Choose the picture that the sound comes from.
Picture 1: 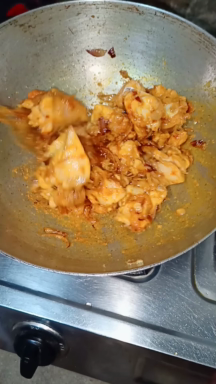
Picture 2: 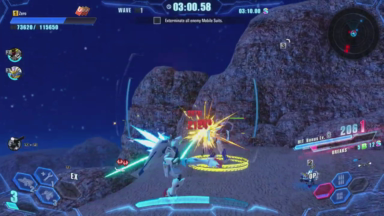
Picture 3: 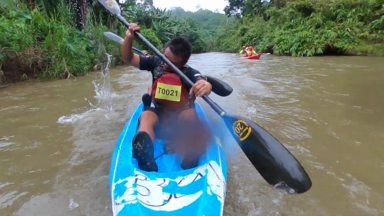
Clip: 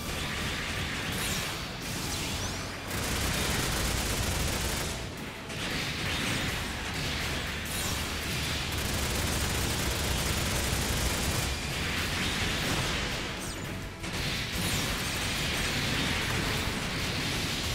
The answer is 2